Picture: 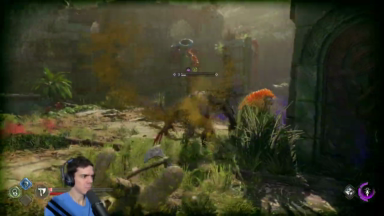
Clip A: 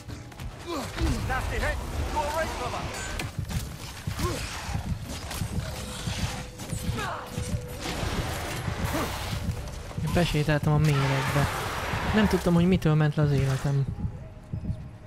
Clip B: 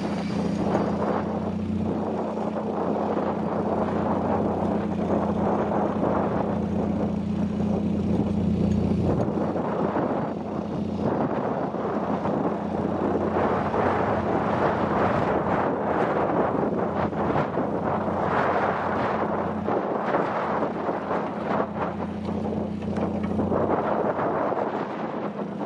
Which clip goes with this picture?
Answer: A